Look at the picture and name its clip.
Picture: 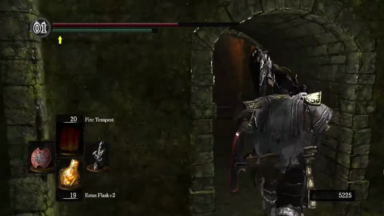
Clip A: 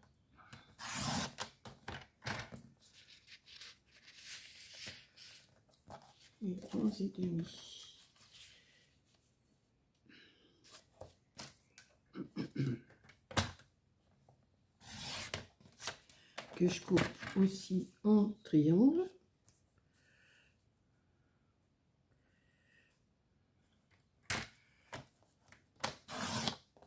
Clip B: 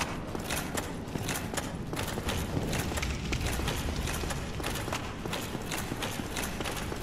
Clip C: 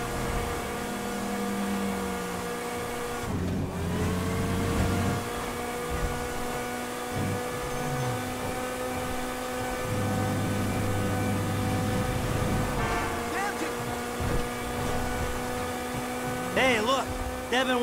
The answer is B